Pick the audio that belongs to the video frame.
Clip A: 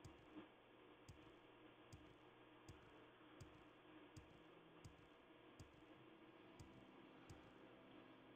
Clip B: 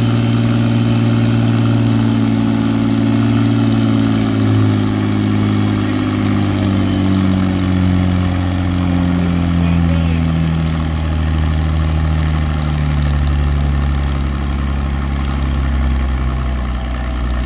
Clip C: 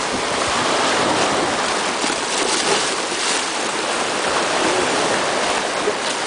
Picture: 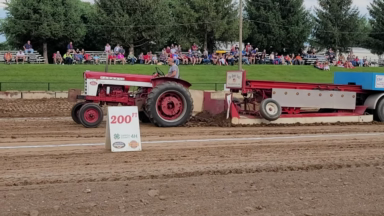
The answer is B